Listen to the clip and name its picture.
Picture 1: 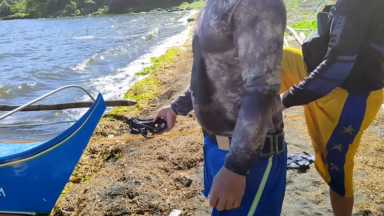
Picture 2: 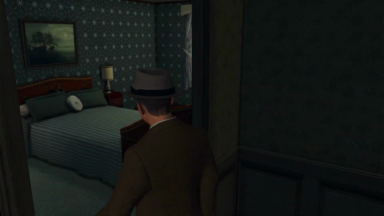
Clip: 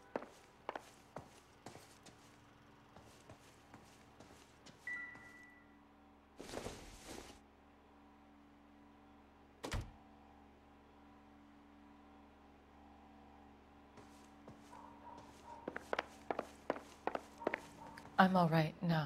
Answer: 2